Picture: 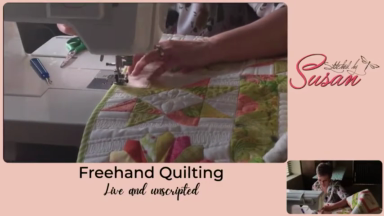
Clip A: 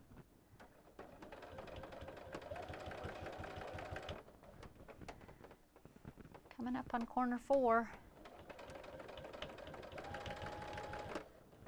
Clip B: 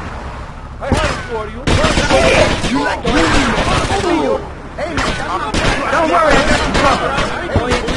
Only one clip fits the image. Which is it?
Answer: A